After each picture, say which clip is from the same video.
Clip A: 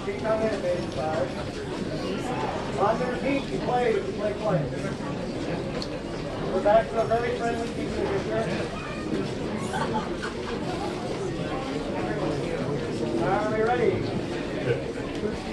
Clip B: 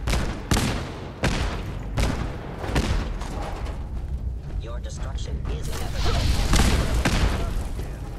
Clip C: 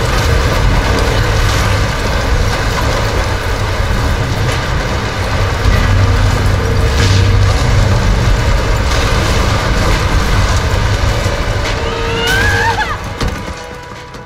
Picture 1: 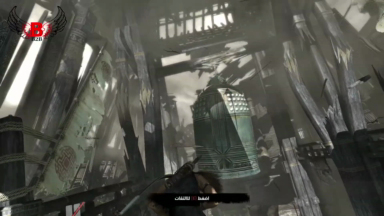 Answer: C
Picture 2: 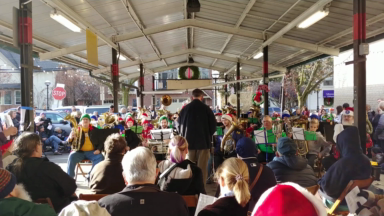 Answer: A